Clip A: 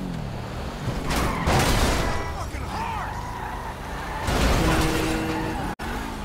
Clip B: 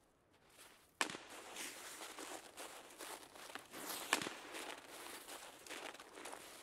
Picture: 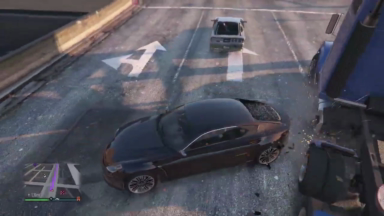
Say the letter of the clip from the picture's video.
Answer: A